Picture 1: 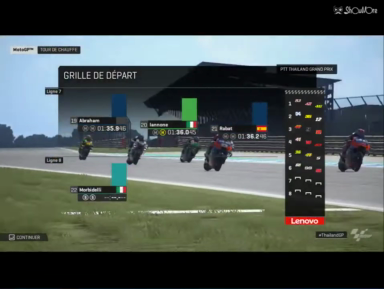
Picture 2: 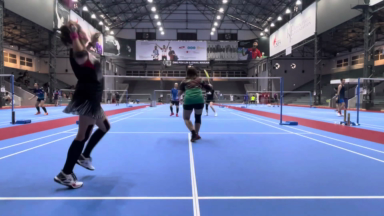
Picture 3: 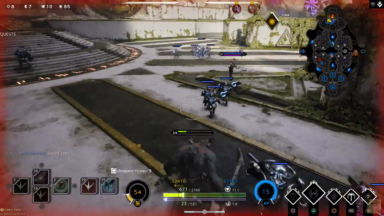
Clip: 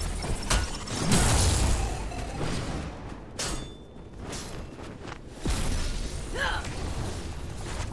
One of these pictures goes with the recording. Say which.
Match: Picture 3